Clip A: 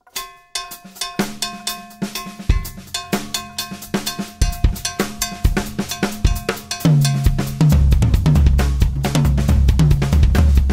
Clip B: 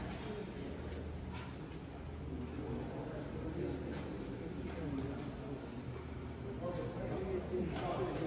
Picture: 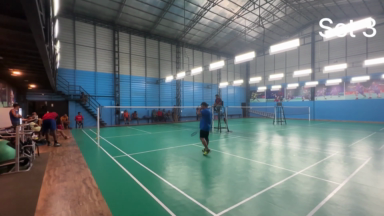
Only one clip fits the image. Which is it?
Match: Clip B